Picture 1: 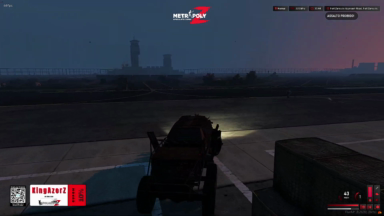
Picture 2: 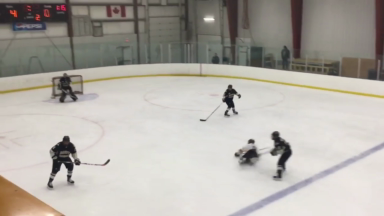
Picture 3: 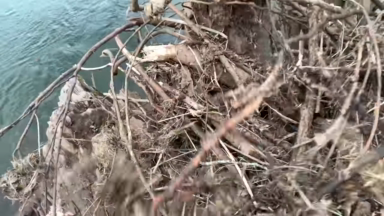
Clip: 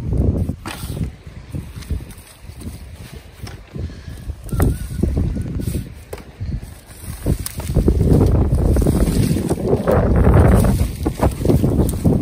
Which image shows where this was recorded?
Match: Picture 3